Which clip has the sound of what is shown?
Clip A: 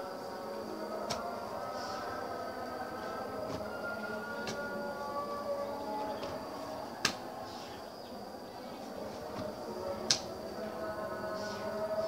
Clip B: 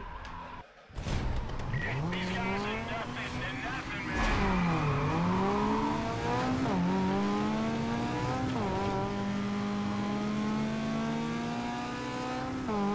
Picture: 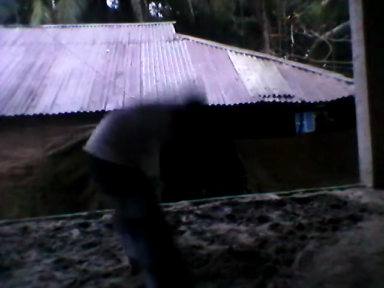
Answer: A